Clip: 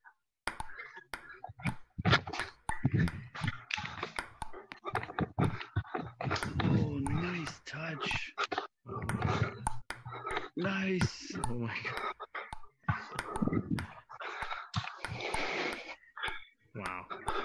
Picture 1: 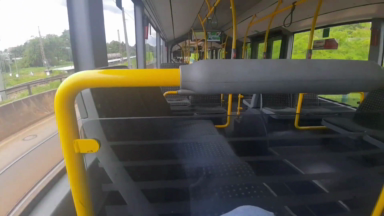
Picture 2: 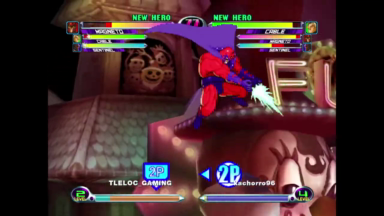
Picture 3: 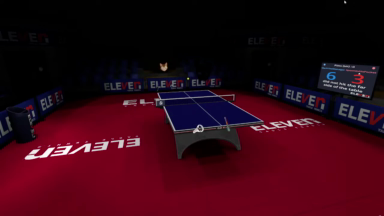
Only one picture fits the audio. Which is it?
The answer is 3